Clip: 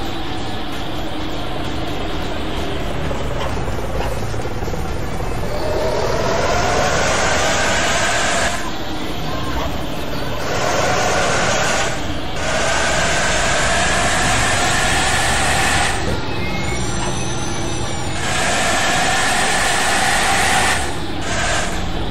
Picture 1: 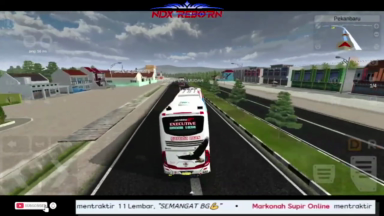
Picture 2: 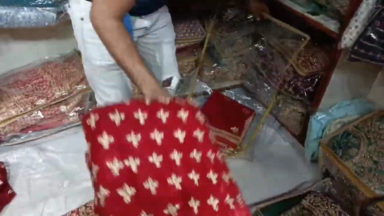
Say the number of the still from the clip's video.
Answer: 1